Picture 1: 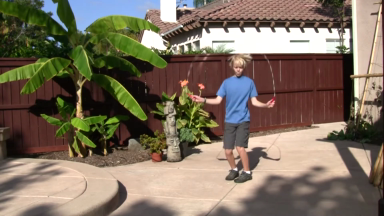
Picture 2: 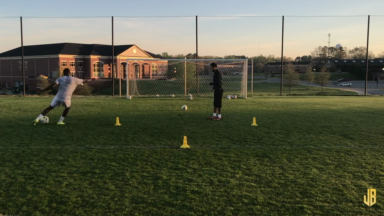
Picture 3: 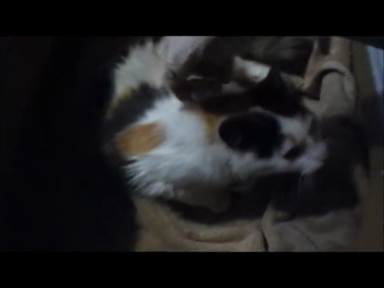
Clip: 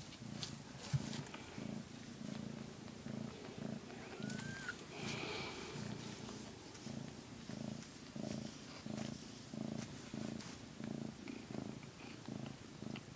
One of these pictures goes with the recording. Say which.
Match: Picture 3